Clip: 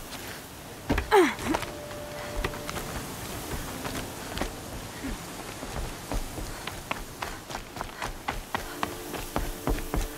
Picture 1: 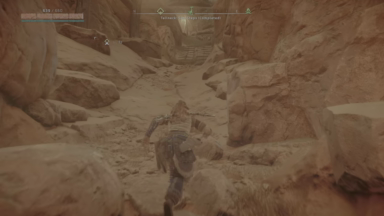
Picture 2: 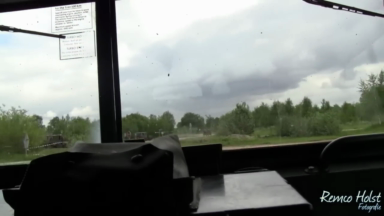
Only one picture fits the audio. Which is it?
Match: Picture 1